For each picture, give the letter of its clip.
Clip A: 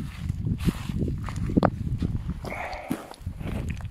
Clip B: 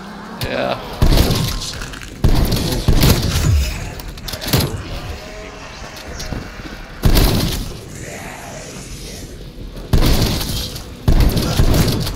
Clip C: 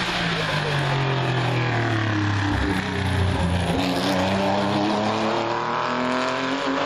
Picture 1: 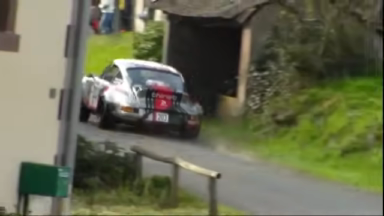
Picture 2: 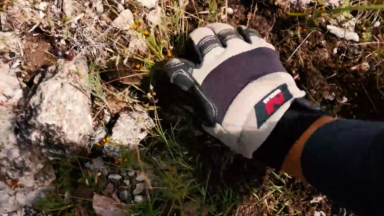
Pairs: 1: C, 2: A